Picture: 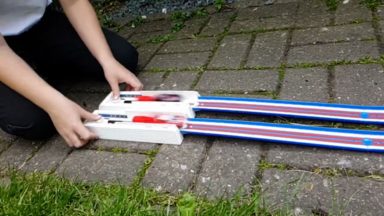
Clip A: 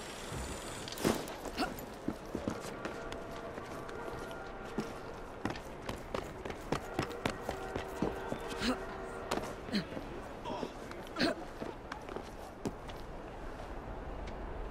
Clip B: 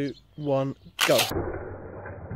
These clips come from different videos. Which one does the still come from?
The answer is B